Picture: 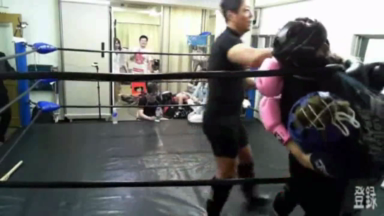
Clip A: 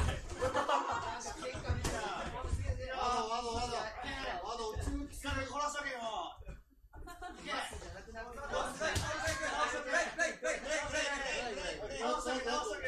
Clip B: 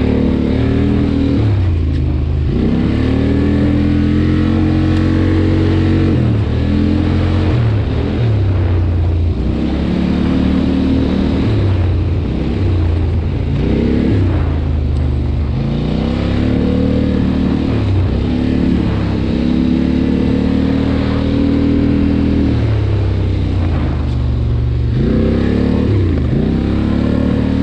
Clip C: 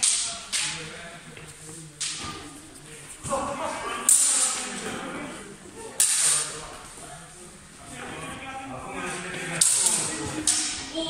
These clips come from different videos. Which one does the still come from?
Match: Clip A